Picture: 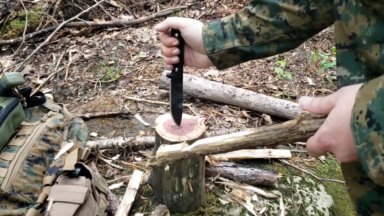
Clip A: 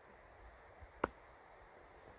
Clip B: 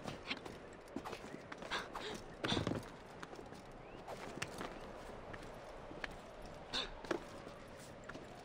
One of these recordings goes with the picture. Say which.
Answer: A